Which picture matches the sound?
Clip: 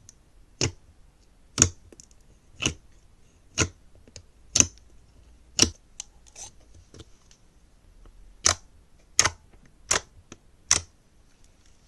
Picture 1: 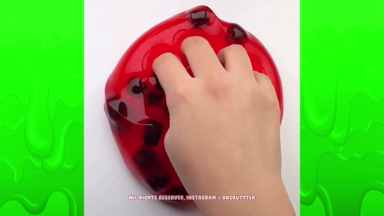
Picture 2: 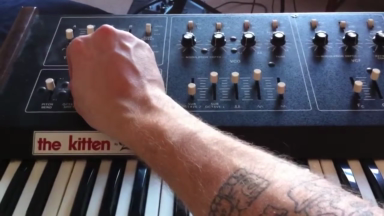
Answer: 1